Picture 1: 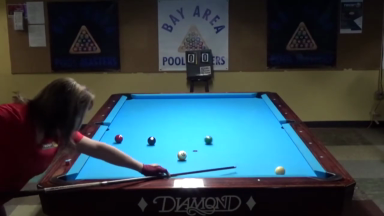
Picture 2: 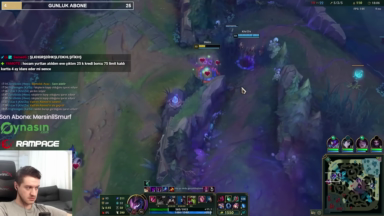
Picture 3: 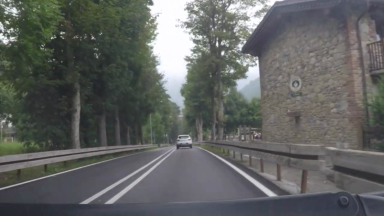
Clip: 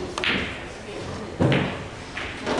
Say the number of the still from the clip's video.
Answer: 1